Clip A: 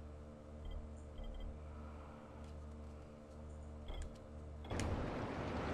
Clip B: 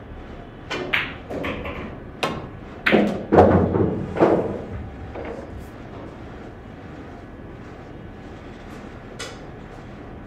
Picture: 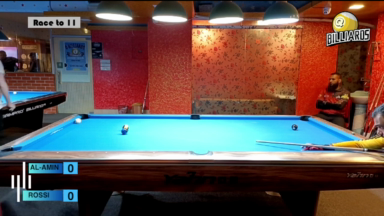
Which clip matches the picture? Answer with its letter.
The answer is B